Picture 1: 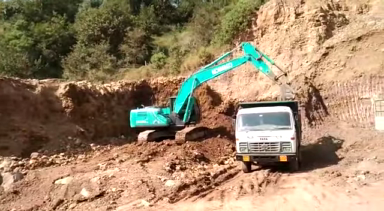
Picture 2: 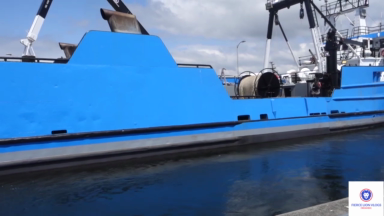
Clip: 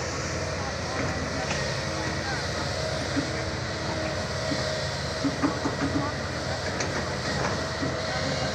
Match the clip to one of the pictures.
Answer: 1